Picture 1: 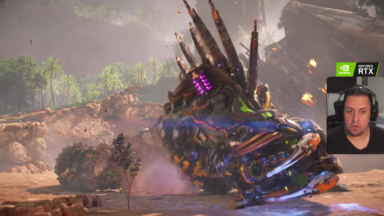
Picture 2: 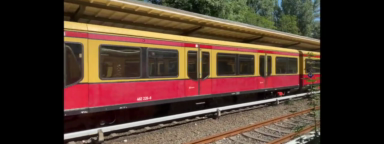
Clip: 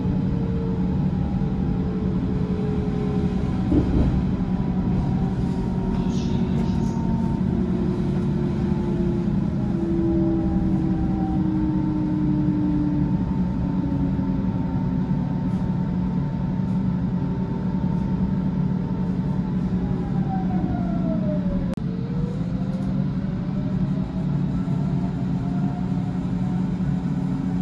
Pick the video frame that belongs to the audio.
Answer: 2